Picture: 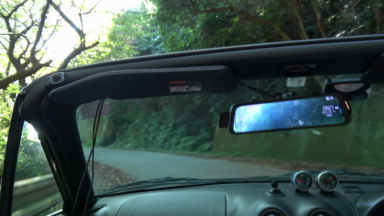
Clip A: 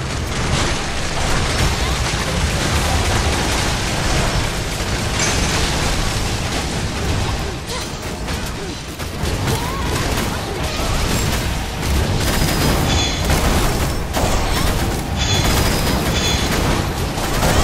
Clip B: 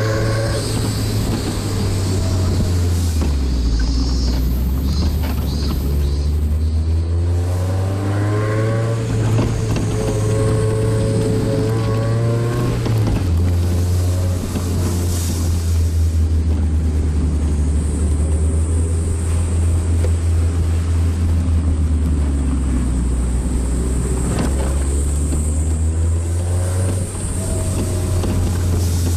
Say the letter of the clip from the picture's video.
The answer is B